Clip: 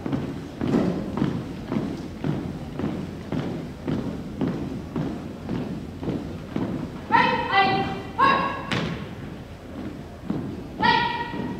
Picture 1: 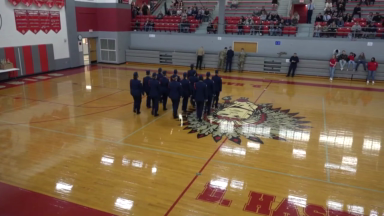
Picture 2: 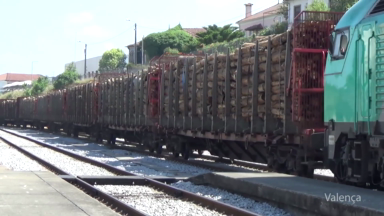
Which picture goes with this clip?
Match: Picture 1